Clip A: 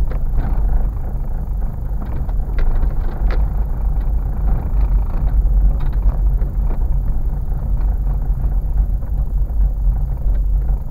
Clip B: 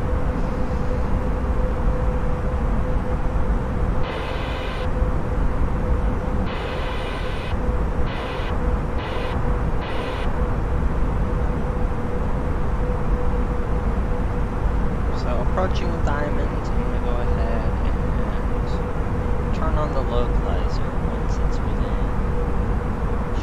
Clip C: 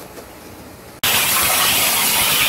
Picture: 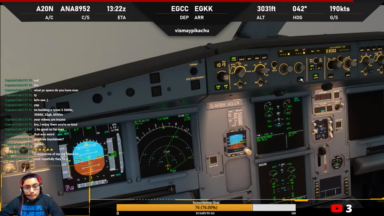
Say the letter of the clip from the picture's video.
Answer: B